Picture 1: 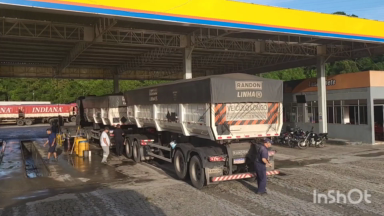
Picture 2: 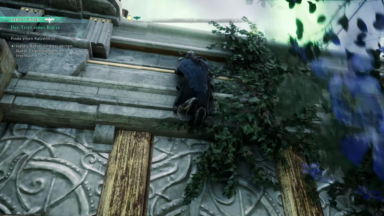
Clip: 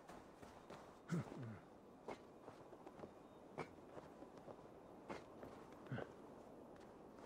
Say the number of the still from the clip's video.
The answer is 2